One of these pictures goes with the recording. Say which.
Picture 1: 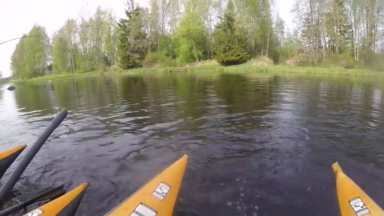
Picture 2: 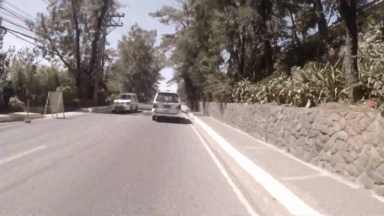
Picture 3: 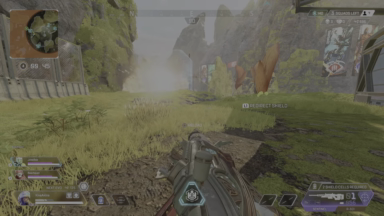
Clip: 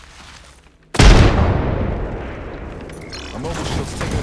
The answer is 3